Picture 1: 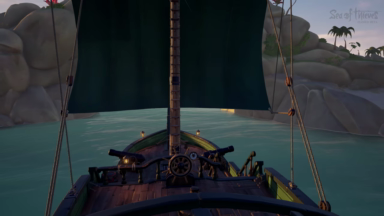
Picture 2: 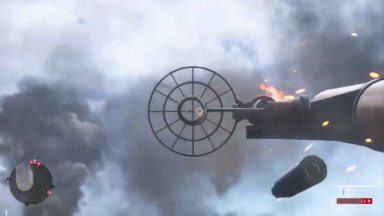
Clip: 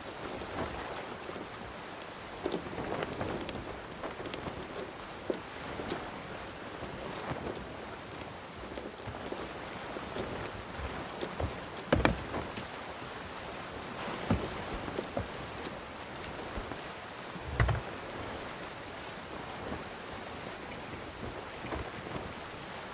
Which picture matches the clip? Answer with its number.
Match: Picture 1